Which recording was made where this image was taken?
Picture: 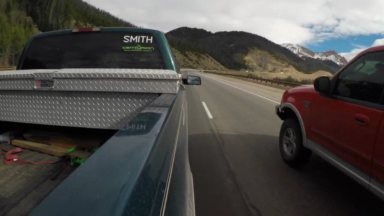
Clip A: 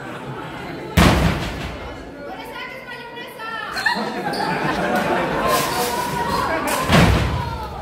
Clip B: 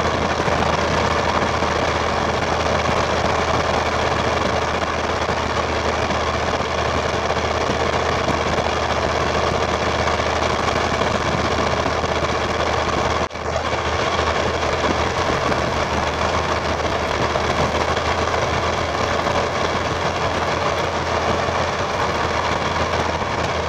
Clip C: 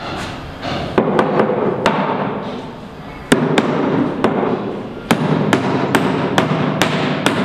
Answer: B